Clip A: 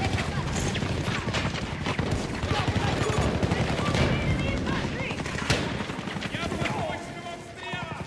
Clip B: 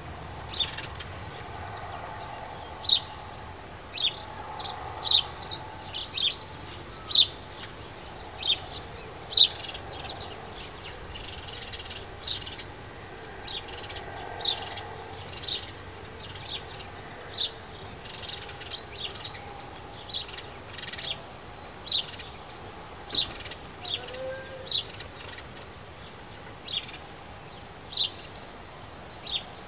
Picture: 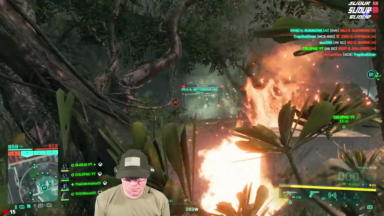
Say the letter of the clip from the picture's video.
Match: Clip A